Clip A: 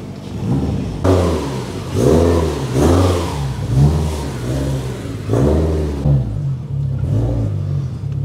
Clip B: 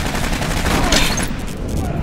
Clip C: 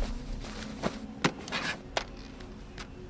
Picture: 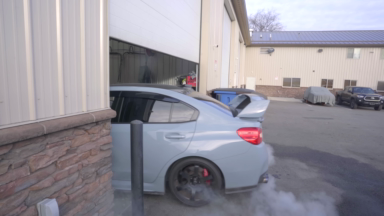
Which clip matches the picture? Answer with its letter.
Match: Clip A